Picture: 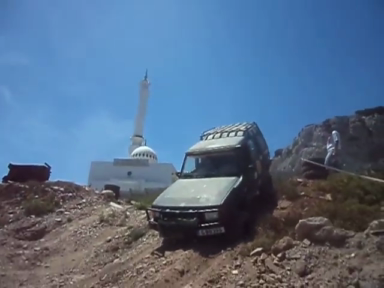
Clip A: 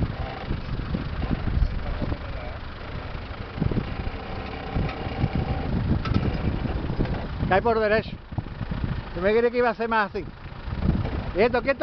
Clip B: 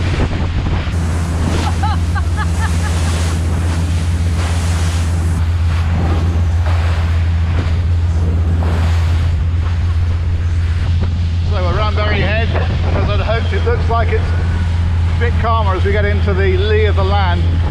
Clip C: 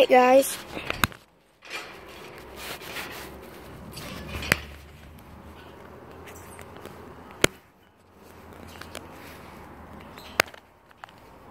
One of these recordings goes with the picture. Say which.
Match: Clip A